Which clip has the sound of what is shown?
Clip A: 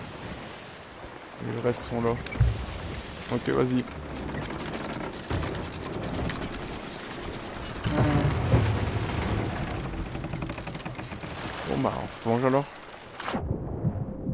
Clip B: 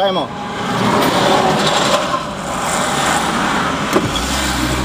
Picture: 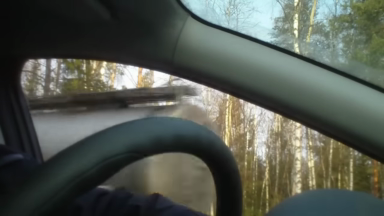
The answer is B